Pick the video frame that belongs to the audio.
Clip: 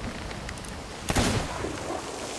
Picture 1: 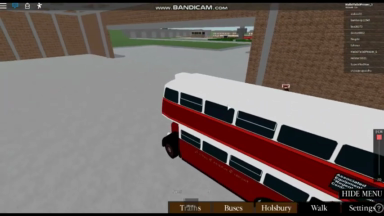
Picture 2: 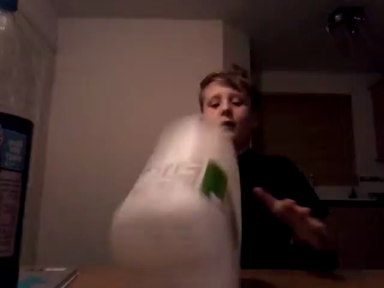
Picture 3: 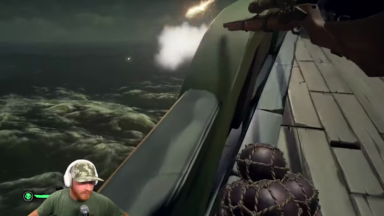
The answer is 3